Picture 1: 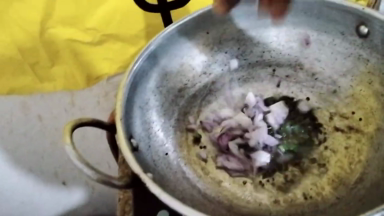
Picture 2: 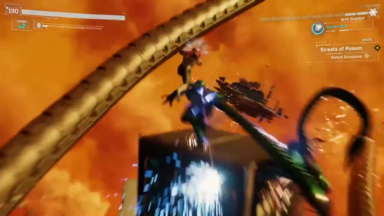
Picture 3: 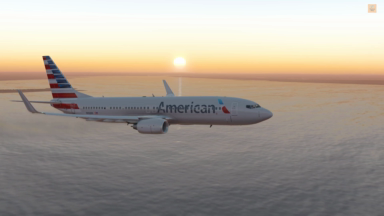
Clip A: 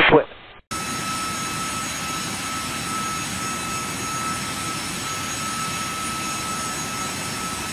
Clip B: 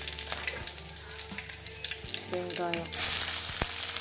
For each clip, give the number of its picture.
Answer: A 3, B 1